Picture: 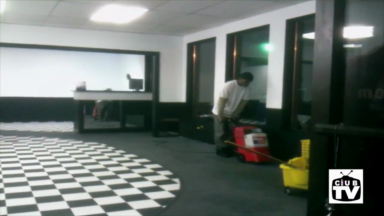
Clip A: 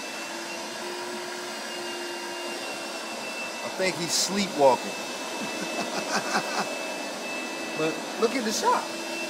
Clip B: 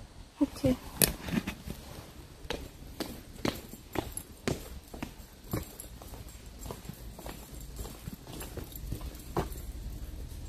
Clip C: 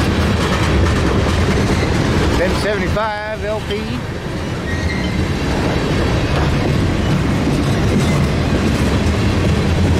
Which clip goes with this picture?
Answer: A